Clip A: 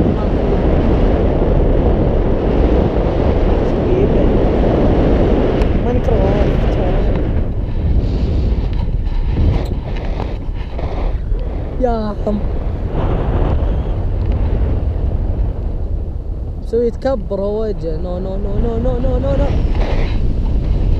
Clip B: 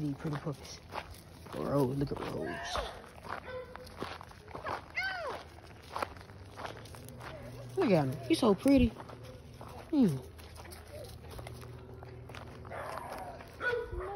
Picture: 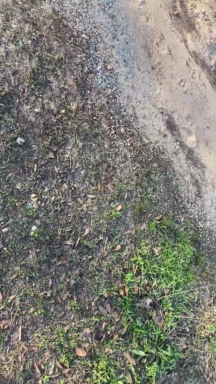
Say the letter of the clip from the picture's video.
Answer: B